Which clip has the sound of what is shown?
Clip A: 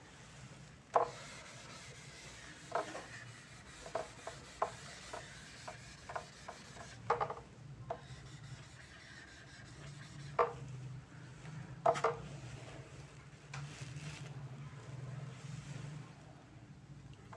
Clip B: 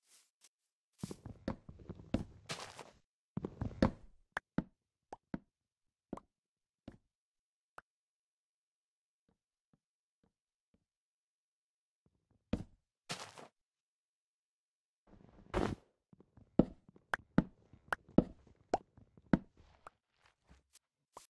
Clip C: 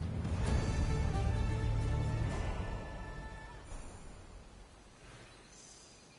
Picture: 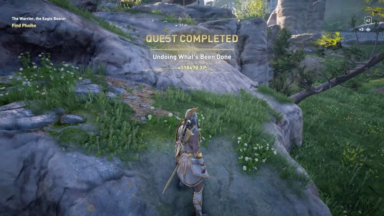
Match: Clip C